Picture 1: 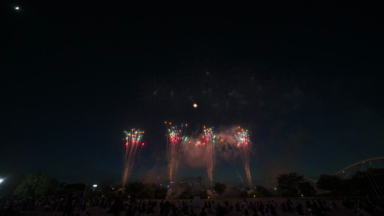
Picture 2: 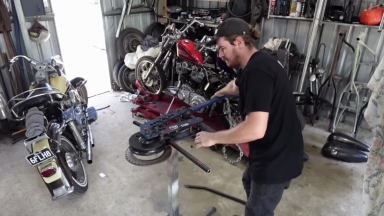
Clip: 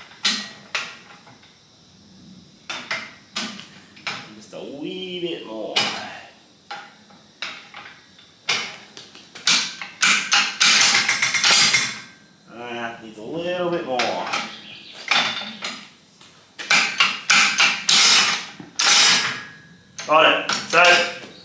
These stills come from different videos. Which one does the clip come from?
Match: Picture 2